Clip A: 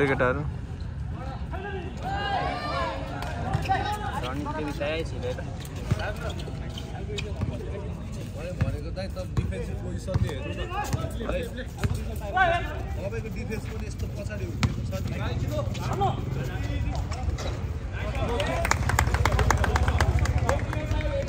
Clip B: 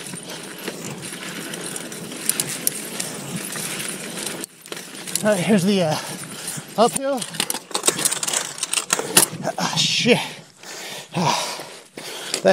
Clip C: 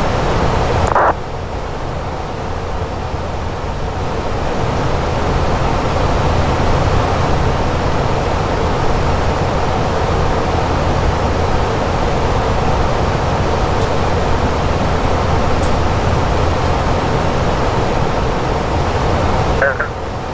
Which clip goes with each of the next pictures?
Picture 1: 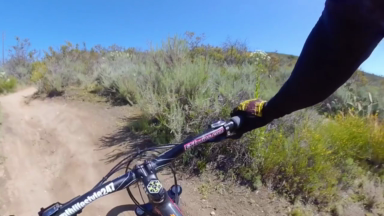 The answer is B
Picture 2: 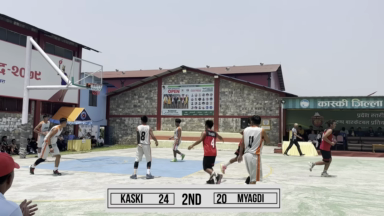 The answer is A